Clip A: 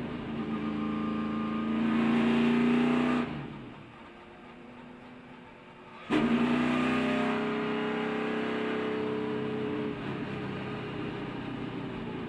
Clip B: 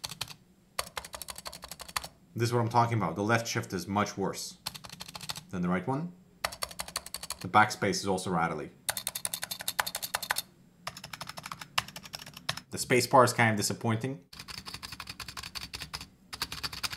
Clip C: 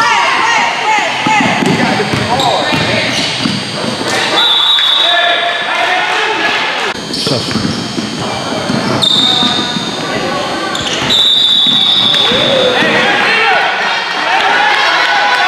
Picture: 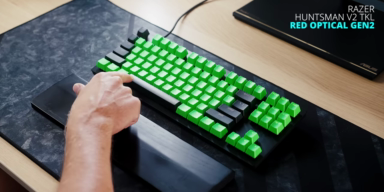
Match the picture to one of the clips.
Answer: B